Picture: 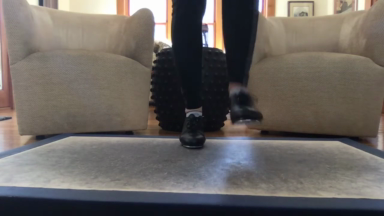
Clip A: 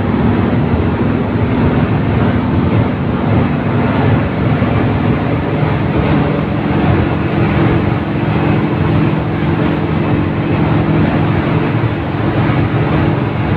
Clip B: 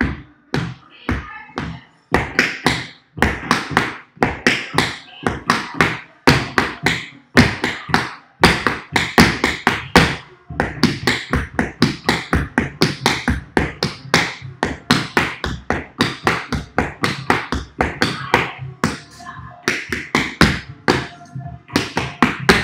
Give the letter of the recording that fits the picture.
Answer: B